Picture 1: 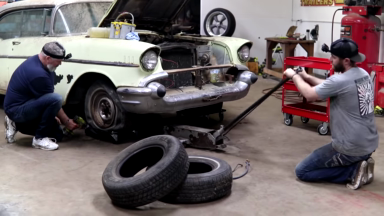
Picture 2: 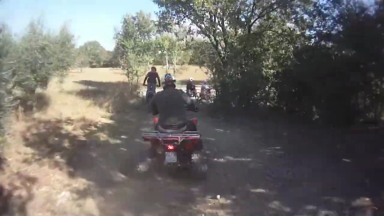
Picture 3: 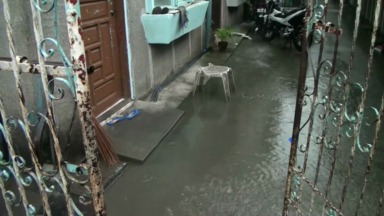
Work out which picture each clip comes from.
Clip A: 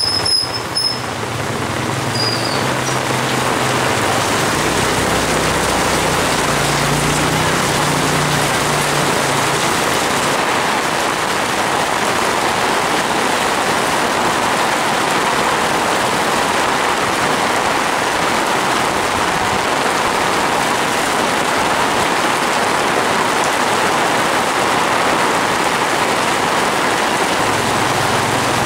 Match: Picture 3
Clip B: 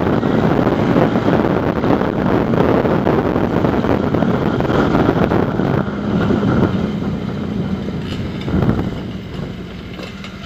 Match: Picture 2